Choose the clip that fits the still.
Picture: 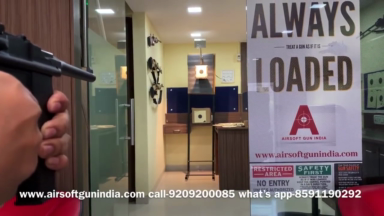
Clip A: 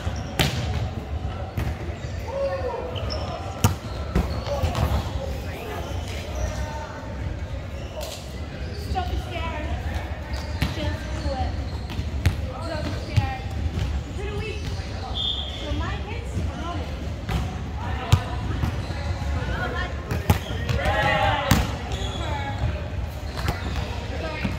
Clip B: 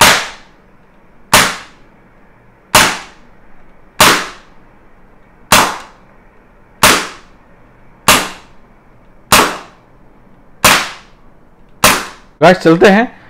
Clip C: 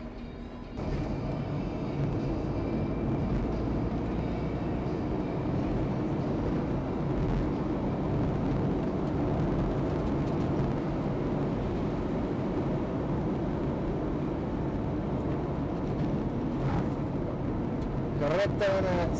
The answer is B